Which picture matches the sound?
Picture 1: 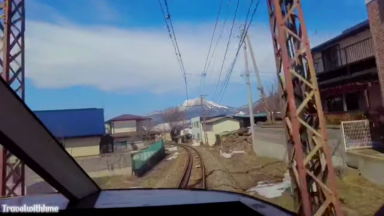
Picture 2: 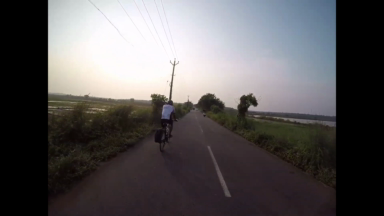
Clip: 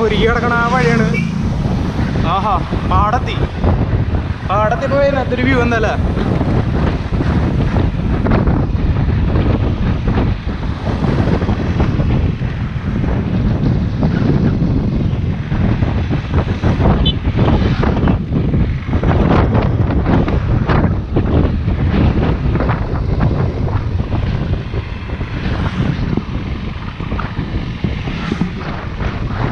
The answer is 2